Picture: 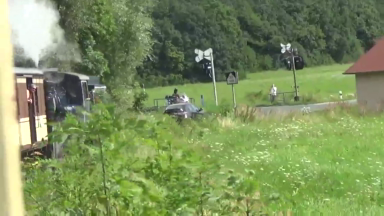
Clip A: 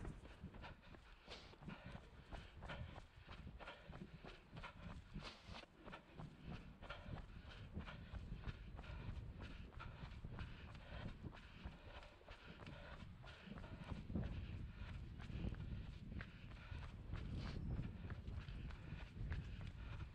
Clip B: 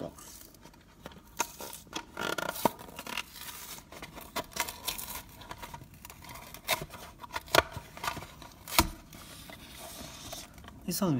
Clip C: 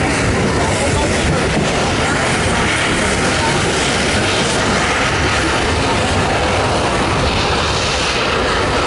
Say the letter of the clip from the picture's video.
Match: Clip C